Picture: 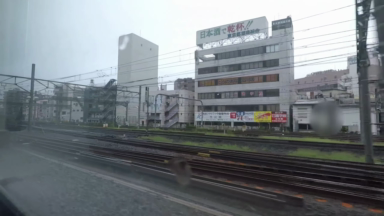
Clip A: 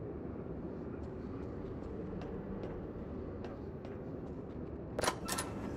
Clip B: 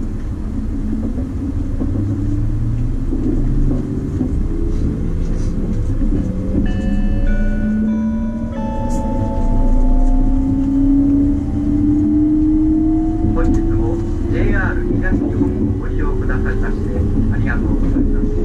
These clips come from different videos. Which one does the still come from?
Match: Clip B